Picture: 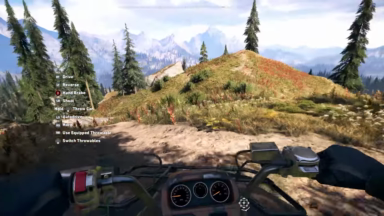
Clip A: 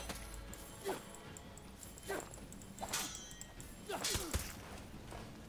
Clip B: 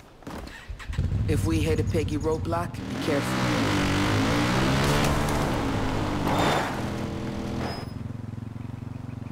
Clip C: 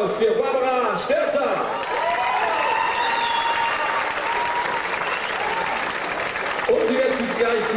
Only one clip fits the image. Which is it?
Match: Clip B